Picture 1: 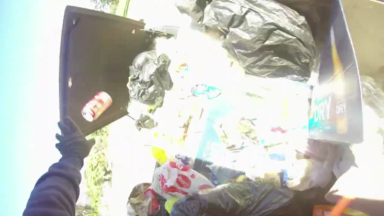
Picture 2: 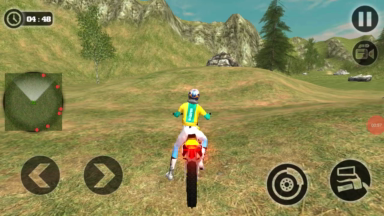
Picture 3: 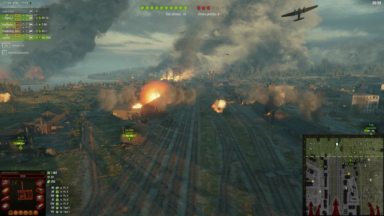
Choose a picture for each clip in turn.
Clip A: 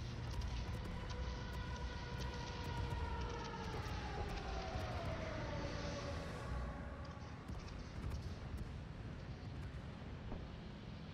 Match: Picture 3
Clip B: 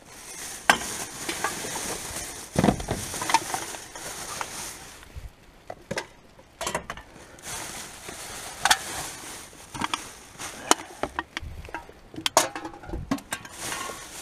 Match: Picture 1